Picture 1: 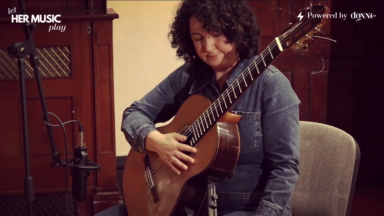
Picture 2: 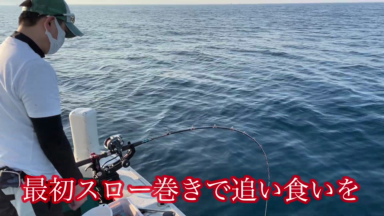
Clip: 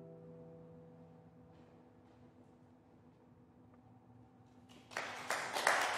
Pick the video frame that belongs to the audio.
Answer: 1